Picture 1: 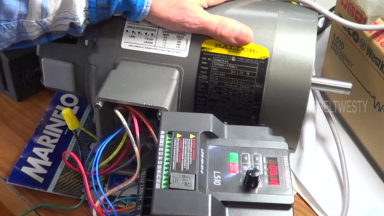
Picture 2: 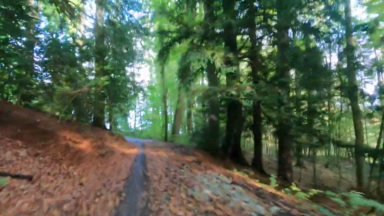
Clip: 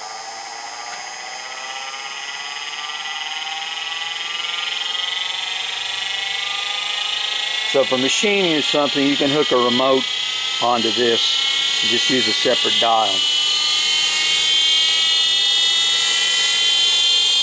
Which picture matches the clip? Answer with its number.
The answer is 1